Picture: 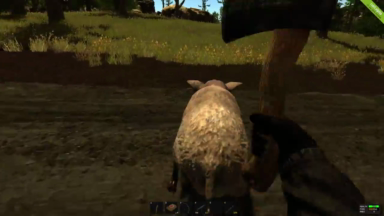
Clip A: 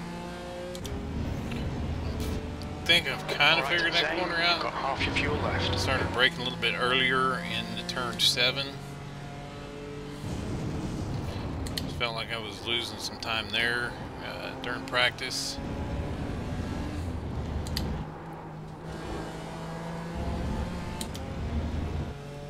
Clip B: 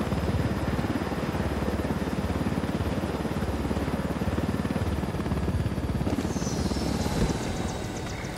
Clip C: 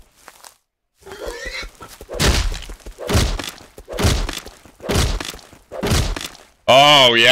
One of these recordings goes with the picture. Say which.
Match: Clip C